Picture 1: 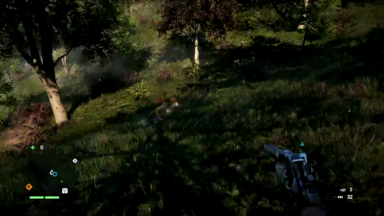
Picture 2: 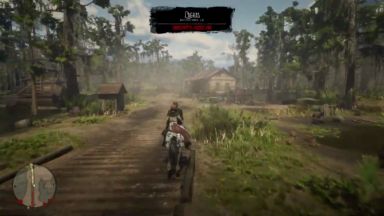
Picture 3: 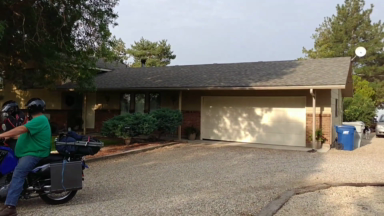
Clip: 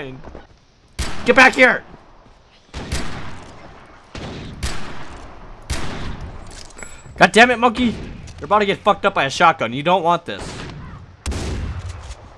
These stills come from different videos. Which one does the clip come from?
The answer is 1